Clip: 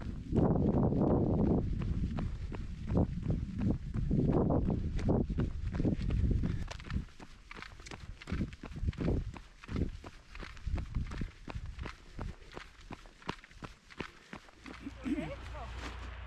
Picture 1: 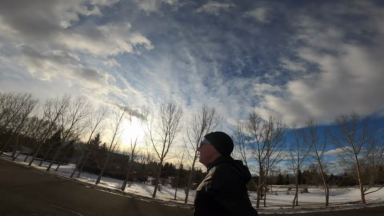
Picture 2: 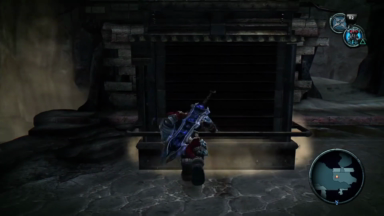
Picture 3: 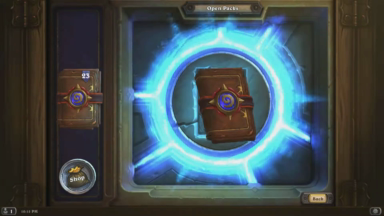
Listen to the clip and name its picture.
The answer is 1